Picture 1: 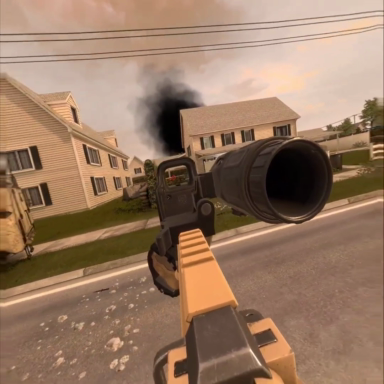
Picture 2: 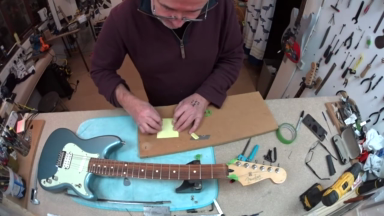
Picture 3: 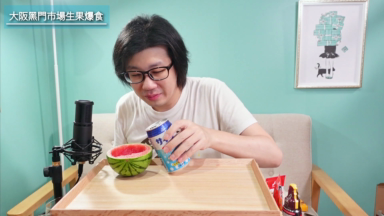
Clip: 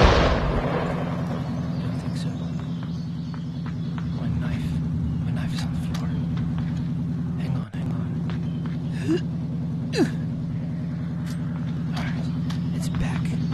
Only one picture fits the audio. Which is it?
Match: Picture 1